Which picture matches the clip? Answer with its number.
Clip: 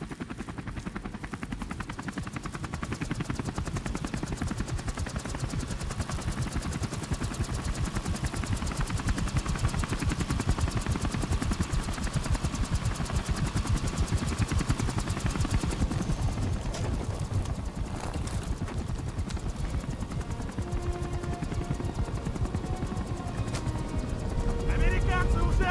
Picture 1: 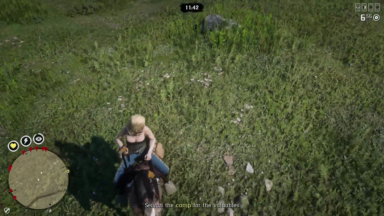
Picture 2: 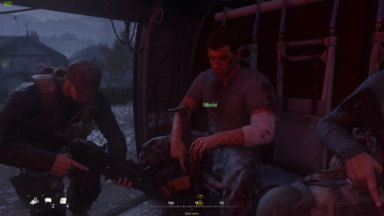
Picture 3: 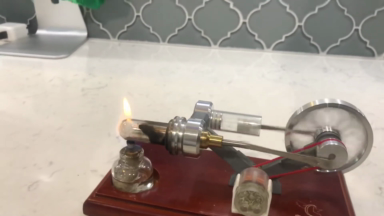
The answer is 2